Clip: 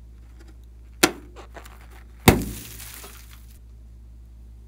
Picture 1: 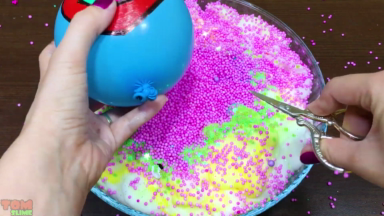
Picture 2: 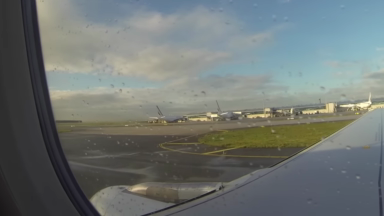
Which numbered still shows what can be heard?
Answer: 1